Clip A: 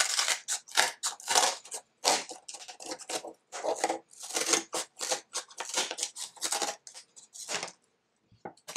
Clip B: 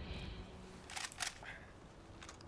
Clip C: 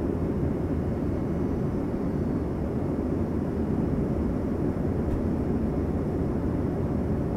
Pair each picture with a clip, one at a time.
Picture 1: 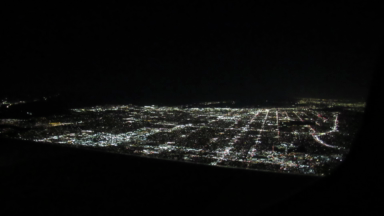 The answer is C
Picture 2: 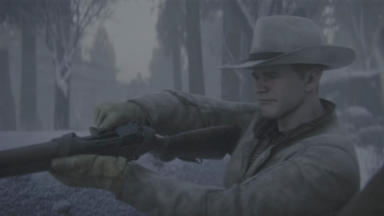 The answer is B